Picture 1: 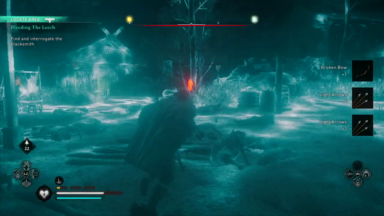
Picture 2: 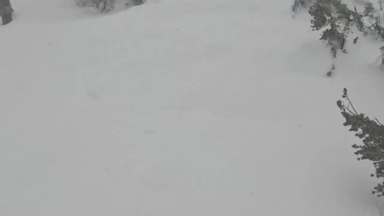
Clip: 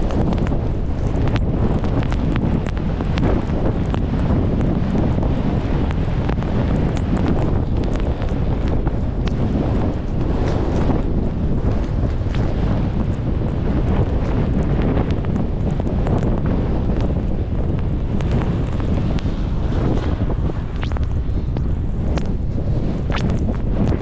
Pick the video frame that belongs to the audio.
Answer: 2